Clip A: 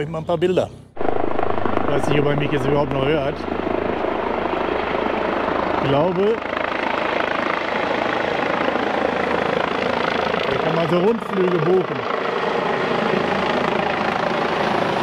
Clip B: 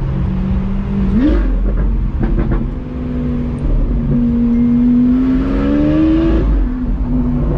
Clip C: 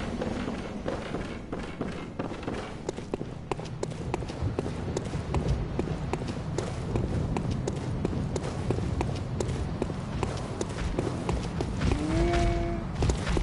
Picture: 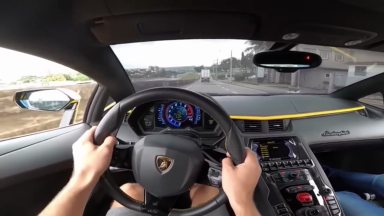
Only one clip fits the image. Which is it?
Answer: B